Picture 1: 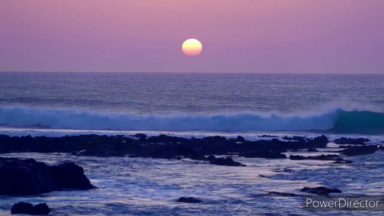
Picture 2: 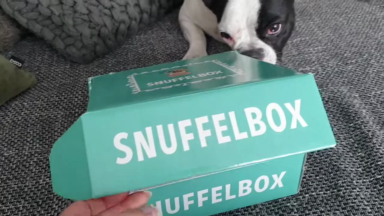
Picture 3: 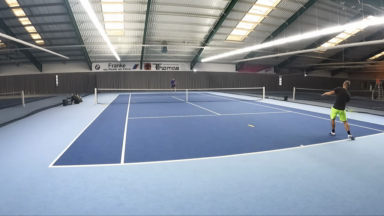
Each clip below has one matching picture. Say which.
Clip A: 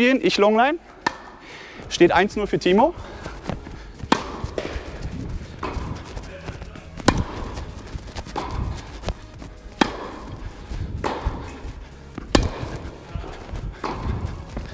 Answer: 3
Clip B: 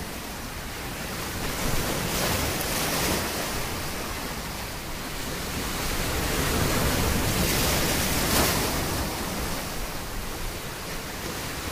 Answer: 1